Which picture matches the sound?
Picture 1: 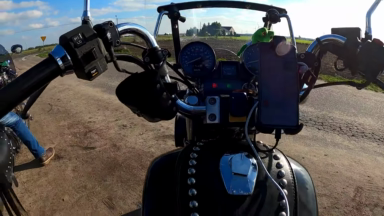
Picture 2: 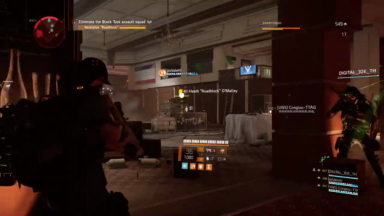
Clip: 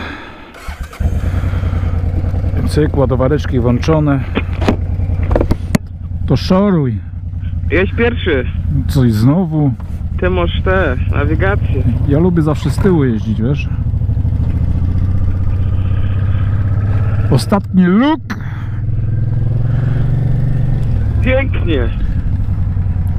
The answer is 1